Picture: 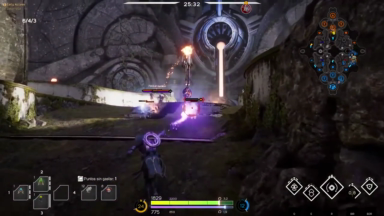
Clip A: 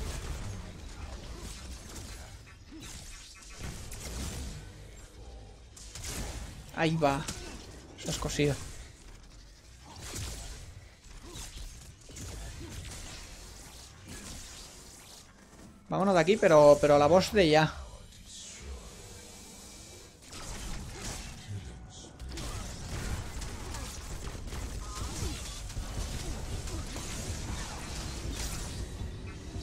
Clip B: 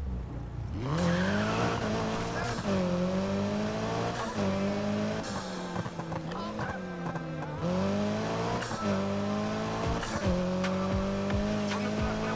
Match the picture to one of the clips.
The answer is A